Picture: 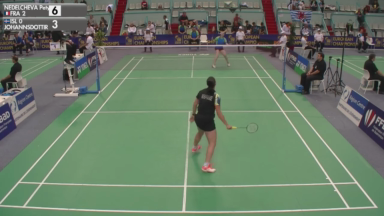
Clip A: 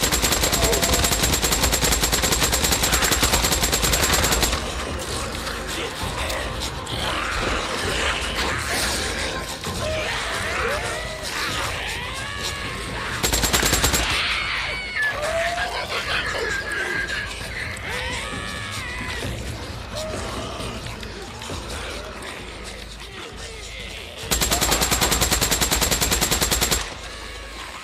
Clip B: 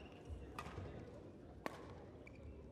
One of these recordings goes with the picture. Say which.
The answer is B